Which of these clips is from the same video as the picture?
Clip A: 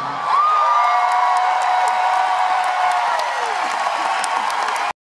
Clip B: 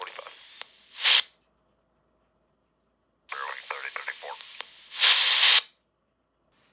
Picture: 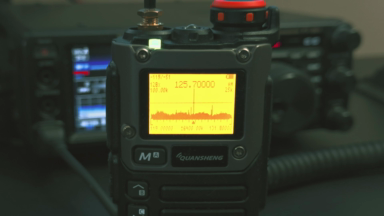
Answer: B